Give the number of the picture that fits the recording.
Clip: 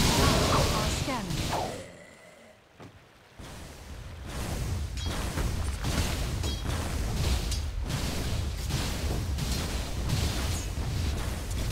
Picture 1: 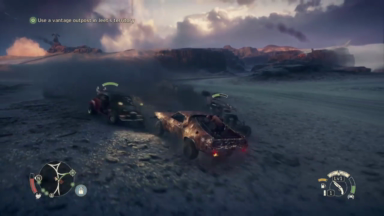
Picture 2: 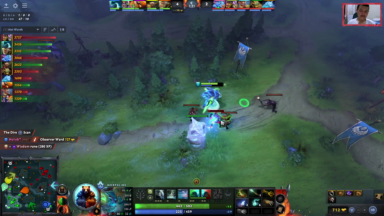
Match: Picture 2